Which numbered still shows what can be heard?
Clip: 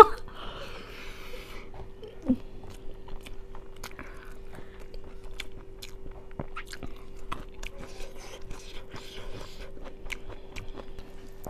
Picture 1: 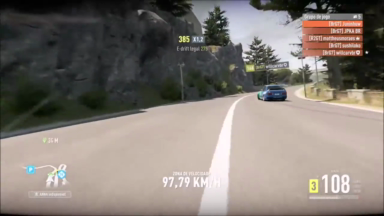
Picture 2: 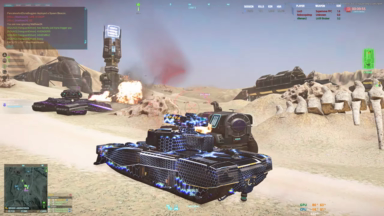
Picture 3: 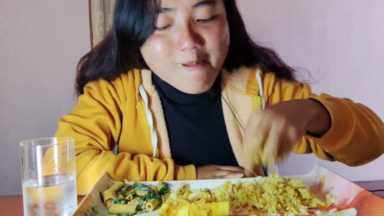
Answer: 3